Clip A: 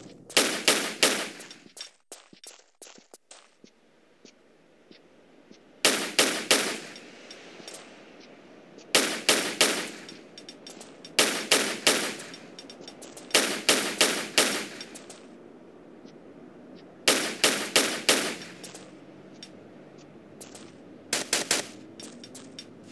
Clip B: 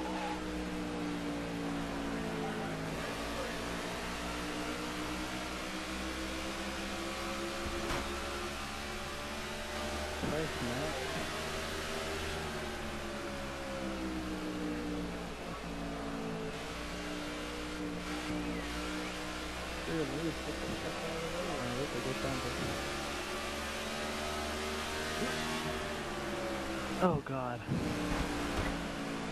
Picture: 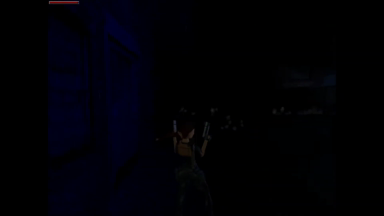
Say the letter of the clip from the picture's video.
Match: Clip A